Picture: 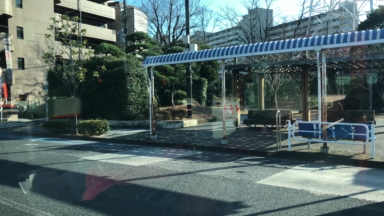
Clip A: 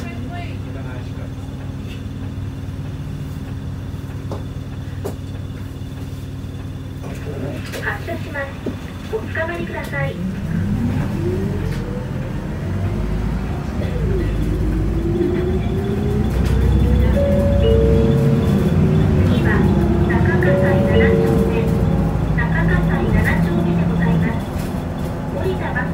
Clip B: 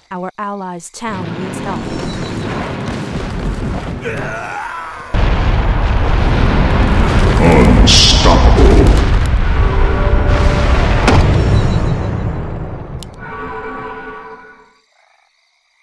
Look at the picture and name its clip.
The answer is A